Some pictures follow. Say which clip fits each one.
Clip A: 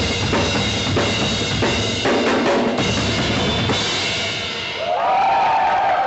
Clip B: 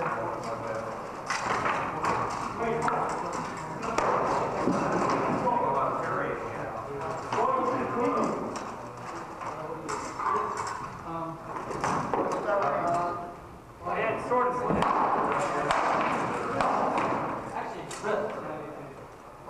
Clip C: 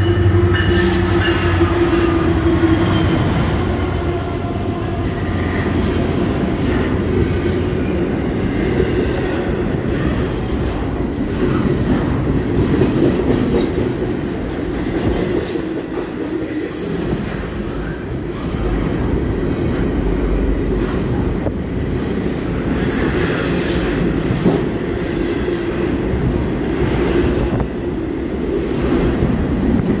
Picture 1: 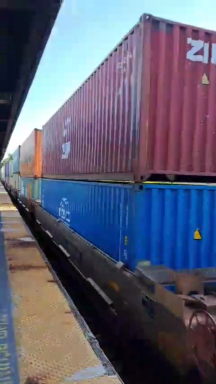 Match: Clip C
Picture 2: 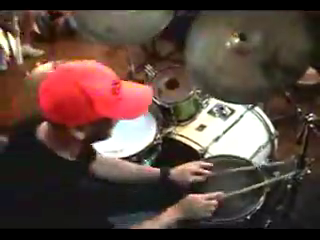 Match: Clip A